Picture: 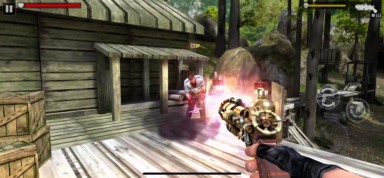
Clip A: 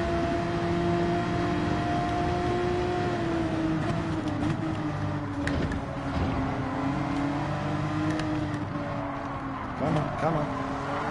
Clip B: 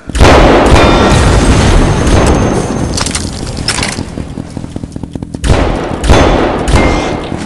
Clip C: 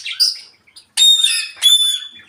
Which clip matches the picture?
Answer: B